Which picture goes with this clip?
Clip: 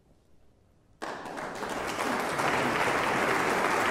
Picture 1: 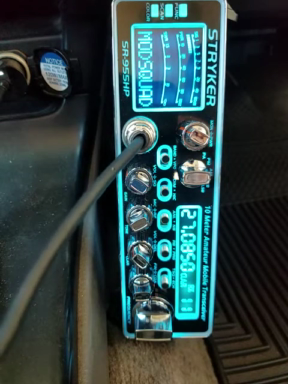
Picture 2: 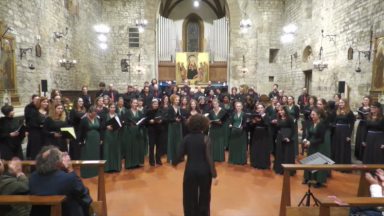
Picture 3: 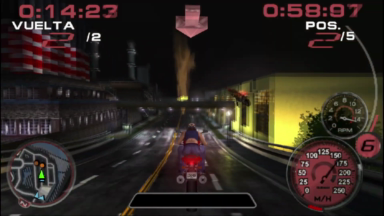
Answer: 2